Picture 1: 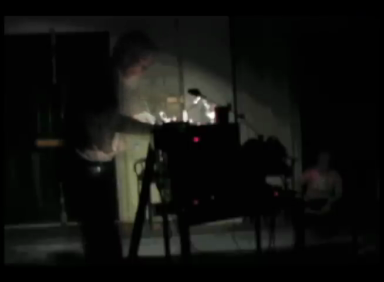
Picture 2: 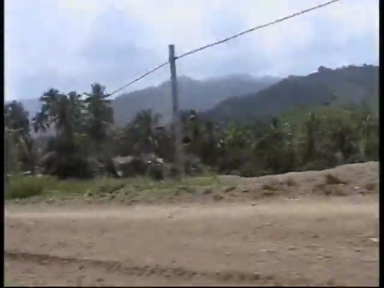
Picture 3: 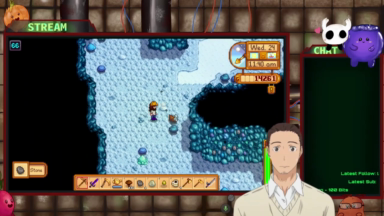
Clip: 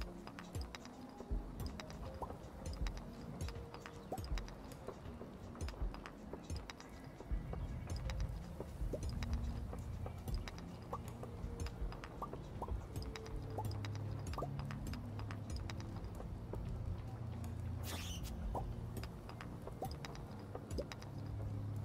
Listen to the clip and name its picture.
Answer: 3